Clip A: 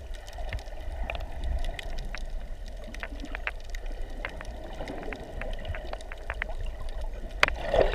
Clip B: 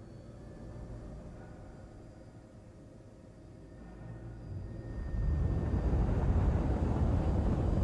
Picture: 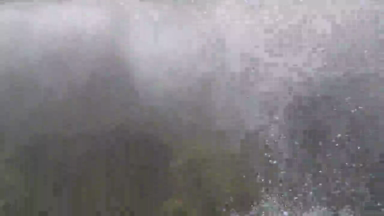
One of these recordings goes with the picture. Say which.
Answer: A